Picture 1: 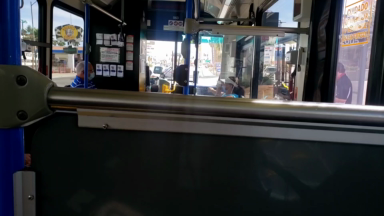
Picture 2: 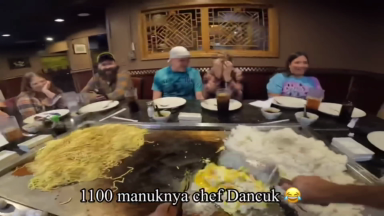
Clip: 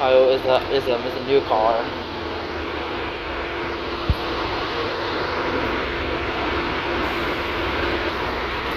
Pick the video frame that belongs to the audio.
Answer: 1